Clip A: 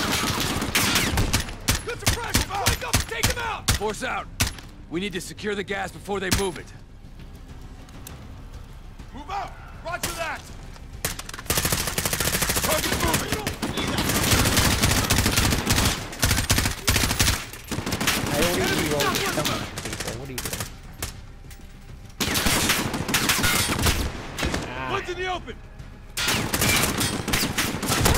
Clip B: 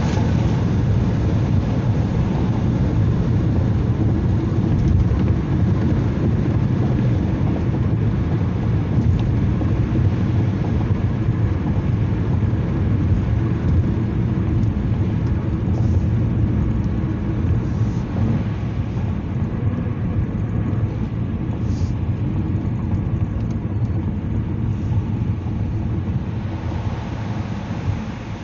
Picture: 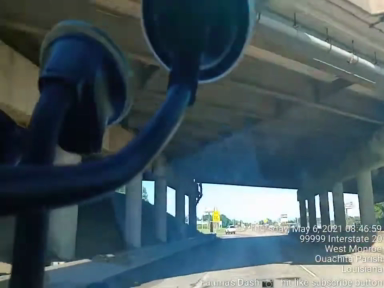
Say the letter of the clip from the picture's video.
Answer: B